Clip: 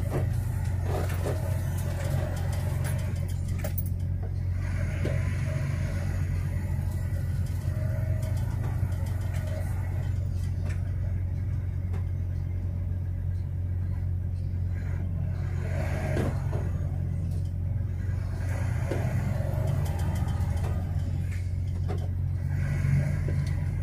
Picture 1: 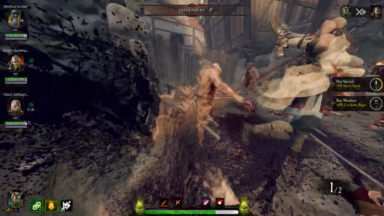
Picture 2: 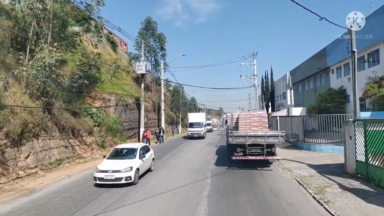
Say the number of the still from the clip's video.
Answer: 2